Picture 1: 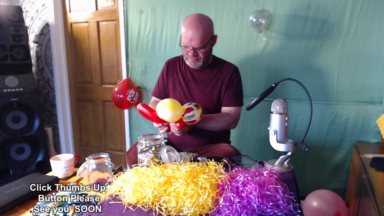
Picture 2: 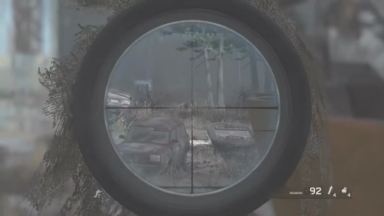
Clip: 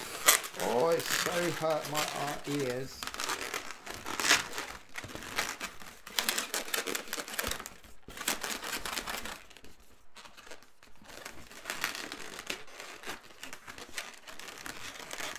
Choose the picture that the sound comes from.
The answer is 1